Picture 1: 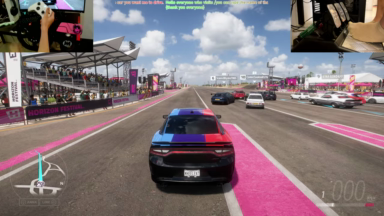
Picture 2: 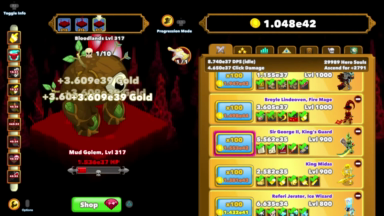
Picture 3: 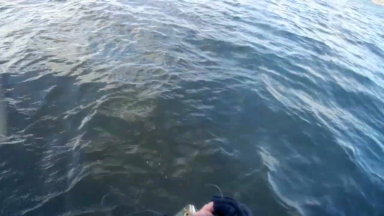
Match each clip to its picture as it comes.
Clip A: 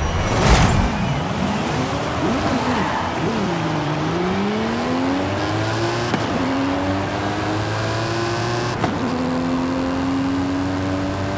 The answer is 1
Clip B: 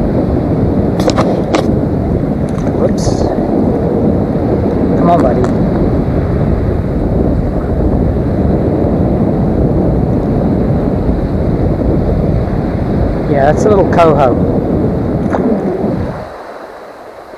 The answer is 3